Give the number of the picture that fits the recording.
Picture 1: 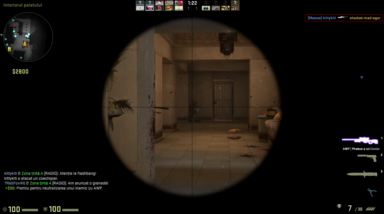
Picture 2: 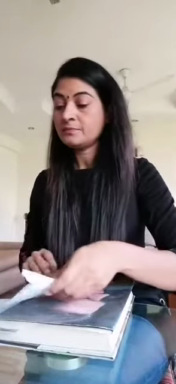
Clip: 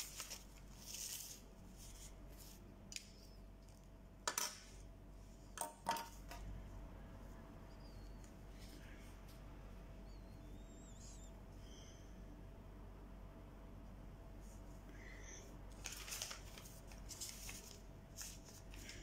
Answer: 2